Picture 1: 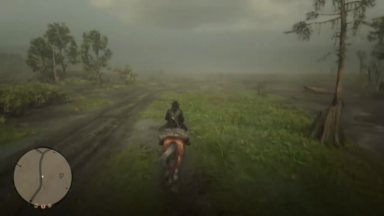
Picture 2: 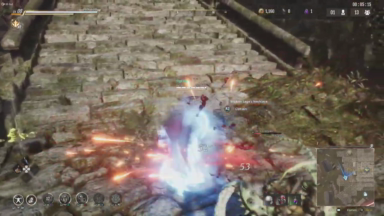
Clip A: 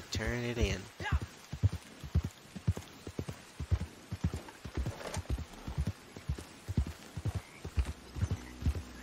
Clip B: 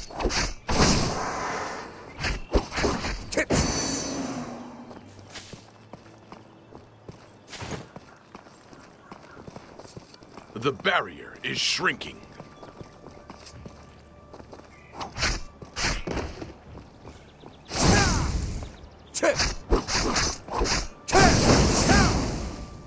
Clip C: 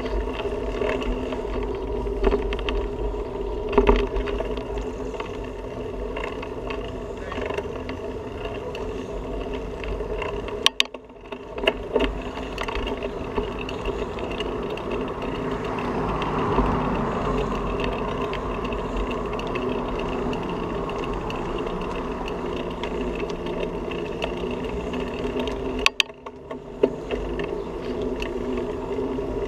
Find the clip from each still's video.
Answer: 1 A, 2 B